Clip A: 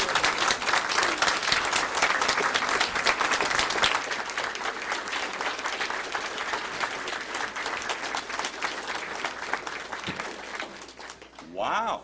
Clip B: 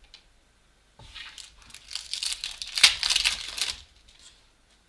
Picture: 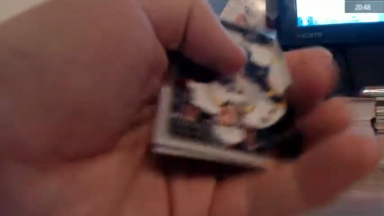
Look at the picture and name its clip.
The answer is B